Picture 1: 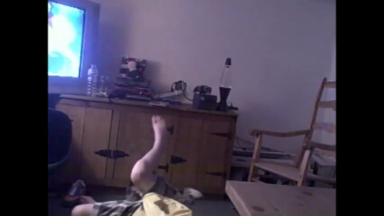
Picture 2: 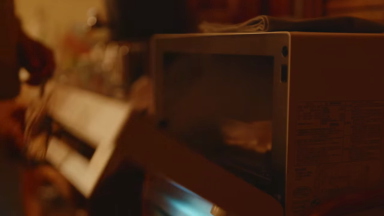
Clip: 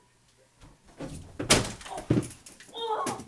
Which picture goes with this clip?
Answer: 1